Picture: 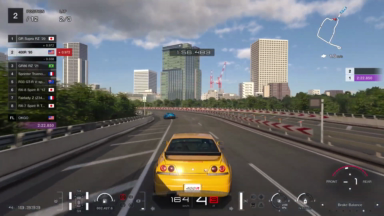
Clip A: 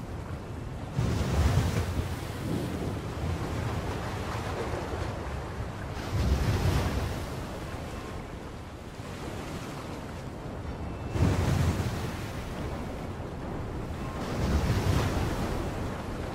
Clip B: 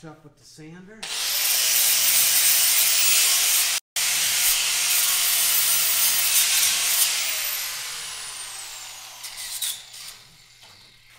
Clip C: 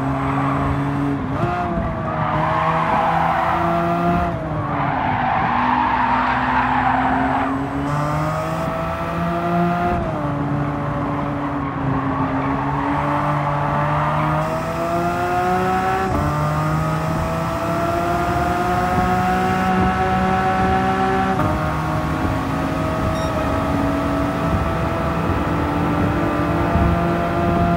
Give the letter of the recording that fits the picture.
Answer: C